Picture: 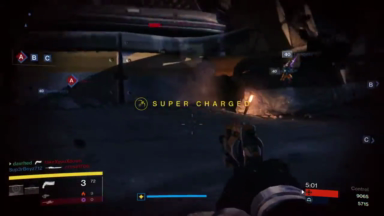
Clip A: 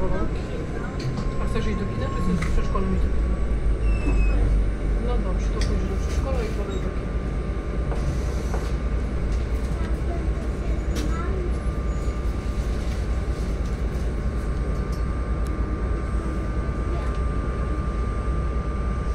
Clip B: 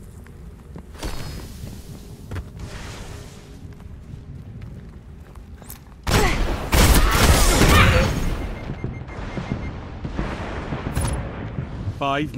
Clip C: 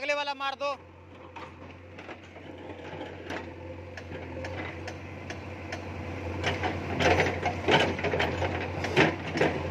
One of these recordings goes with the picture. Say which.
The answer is B